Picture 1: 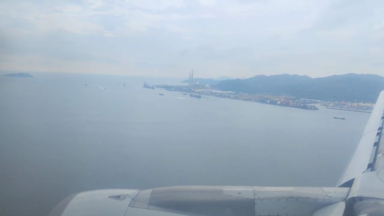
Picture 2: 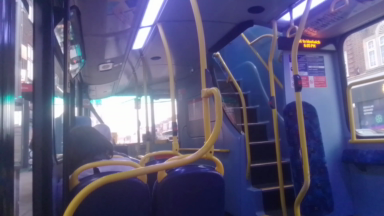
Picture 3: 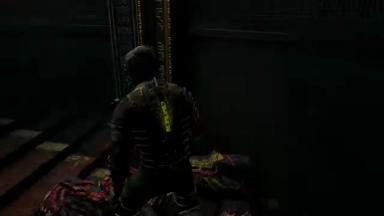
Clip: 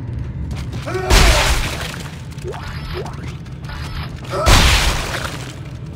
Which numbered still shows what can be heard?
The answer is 3